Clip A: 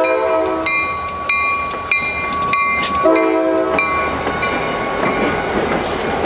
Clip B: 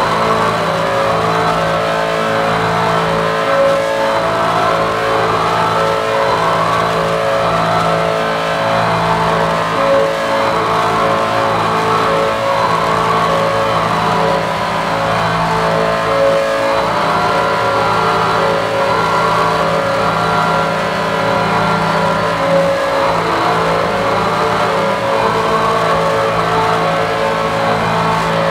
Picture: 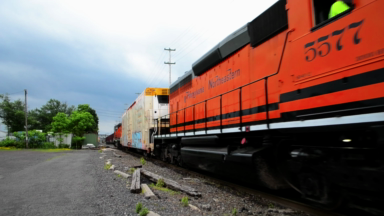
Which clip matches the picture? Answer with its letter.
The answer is A